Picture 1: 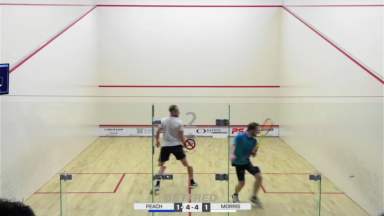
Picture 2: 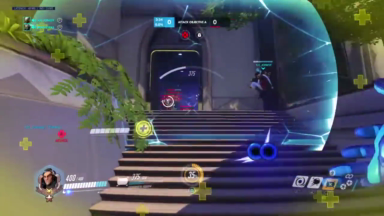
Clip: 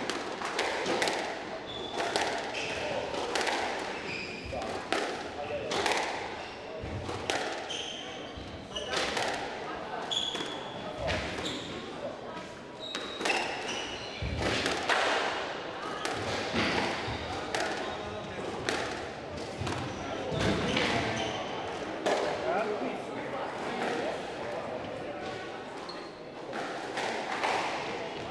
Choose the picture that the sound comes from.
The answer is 1